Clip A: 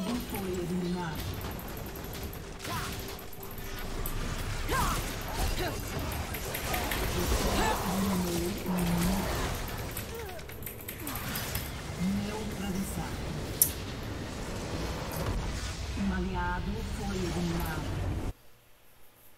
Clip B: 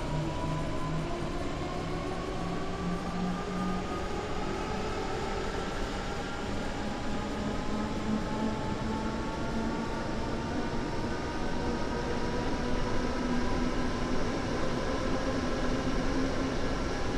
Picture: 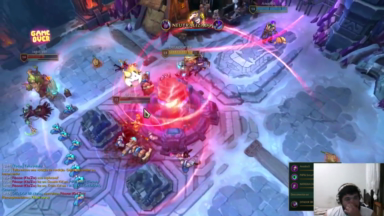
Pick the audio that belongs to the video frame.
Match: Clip A